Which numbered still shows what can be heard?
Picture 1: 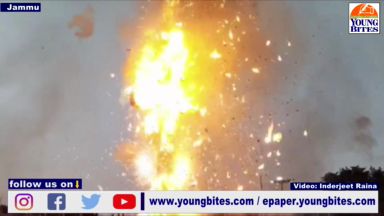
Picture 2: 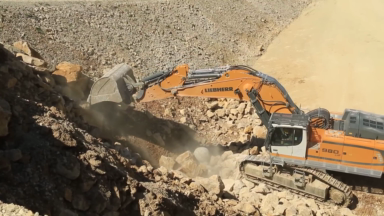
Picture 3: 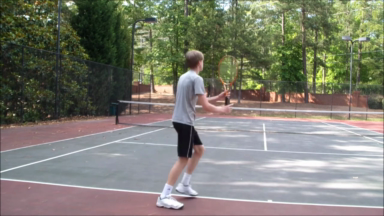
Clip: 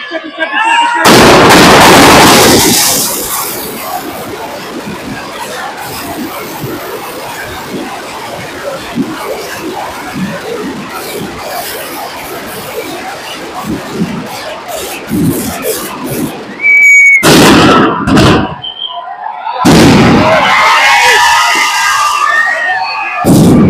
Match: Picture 1